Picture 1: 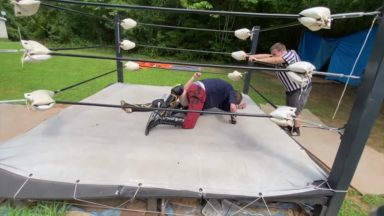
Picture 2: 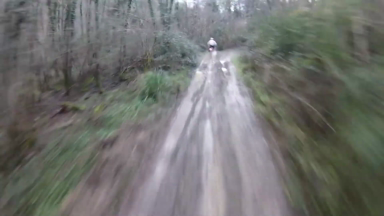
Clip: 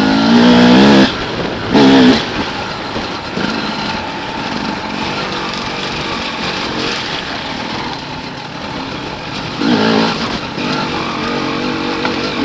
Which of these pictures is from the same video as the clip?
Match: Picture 2